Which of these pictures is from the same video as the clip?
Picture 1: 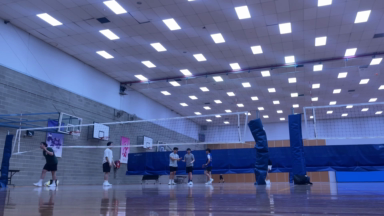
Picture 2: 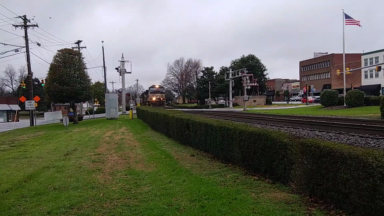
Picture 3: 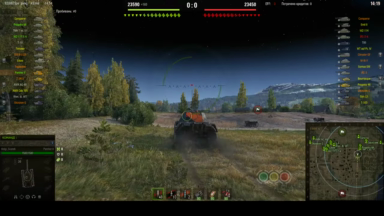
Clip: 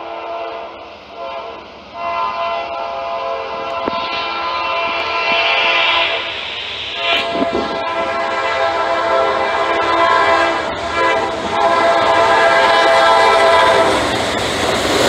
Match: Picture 2